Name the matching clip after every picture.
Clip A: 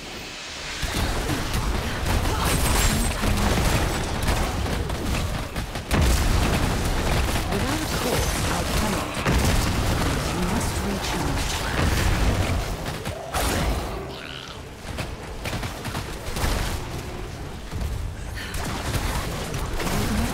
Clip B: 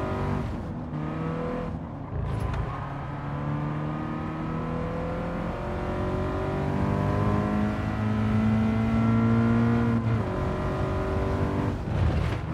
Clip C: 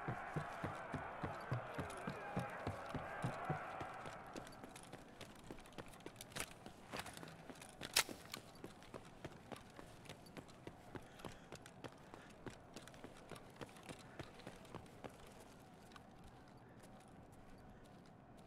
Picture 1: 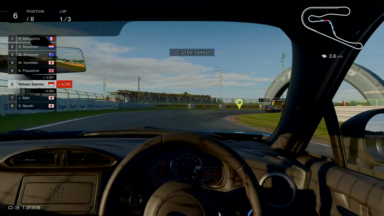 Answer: B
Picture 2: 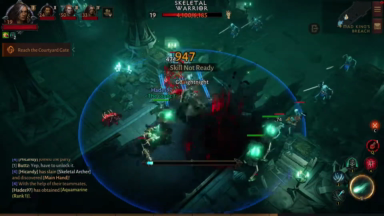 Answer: A